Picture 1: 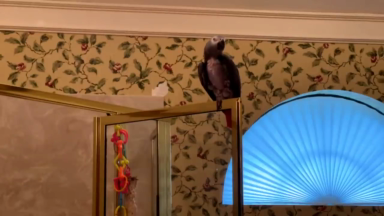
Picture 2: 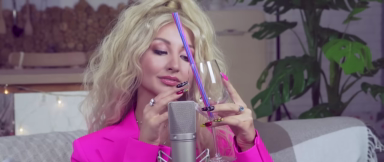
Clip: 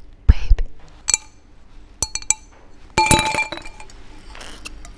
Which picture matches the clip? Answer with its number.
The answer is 2